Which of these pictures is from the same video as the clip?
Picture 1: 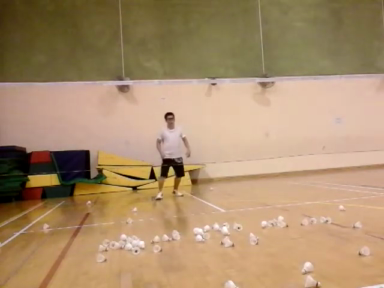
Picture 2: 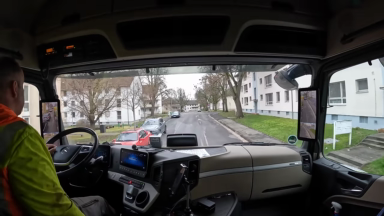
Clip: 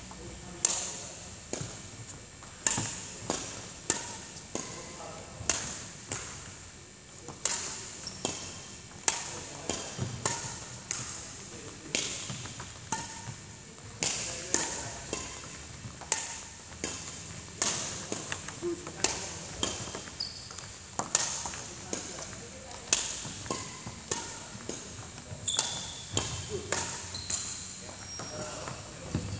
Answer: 1